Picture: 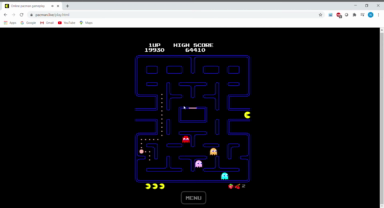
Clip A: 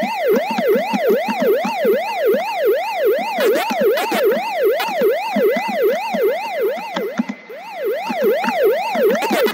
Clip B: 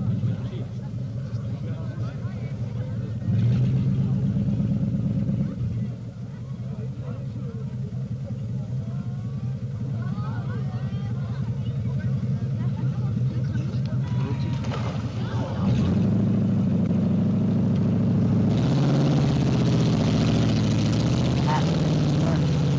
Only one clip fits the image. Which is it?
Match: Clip A